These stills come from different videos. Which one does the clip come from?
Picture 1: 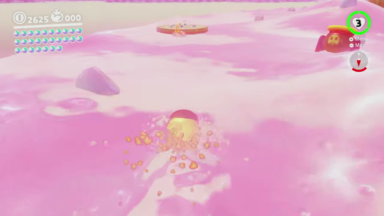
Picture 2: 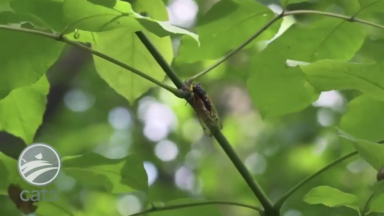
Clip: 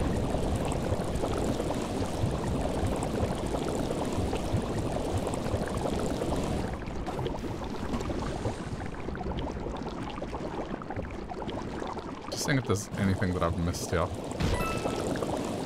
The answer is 1